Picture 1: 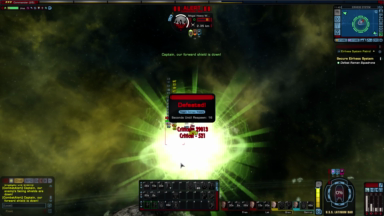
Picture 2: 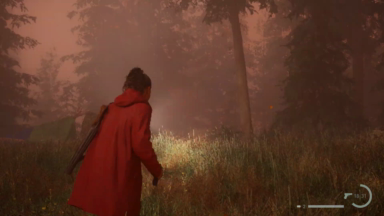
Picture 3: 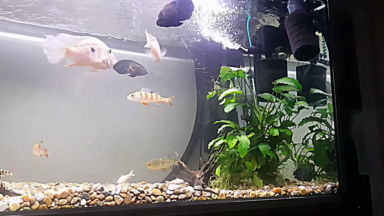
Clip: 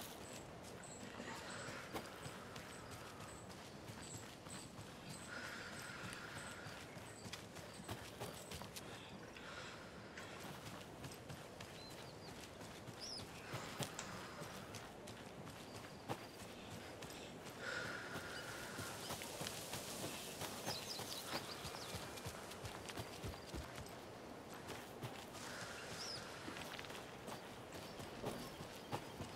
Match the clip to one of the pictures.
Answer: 2